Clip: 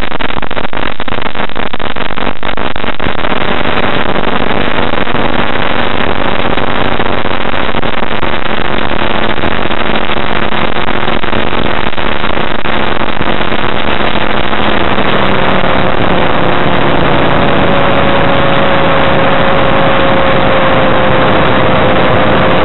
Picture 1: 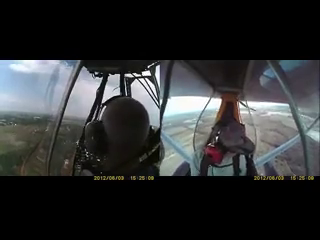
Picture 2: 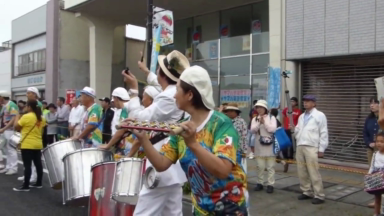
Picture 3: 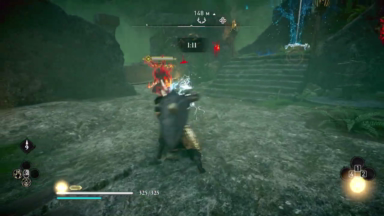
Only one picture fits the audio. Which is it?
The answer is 1